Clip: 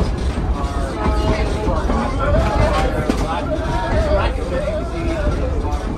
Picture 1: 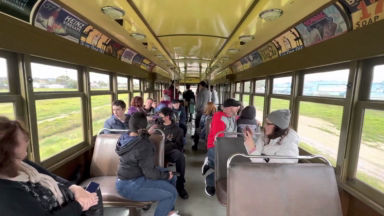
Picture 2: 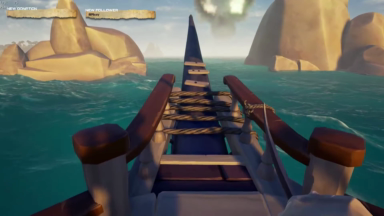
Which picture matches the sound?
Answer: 1